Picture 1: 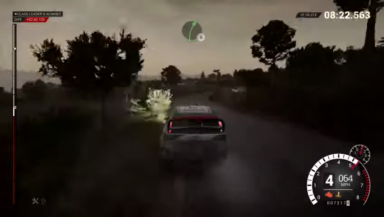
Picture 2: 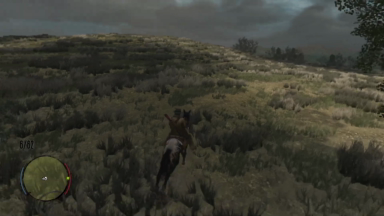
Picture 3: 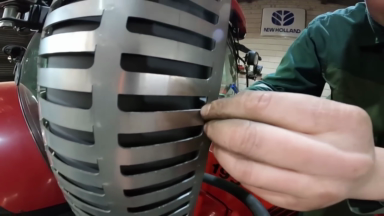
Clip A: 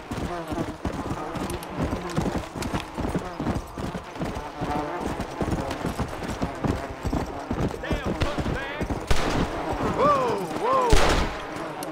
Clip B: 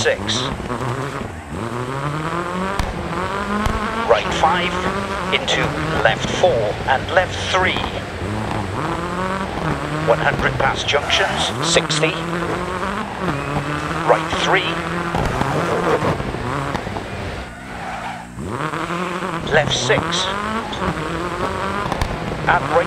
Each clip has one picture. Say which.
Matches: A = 2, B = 1